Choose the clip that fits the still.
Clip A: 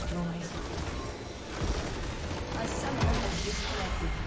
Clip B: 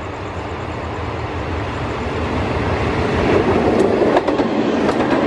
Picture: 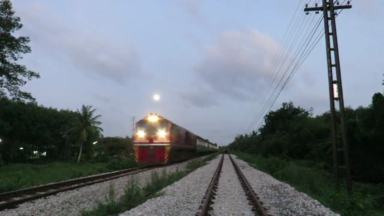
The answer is B